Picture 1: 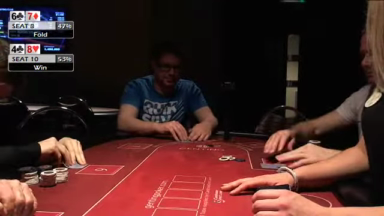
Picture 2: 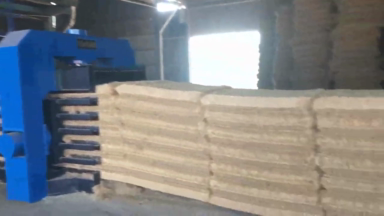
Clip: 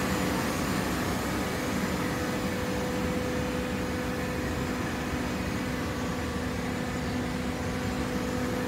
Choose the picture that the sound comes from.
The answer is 2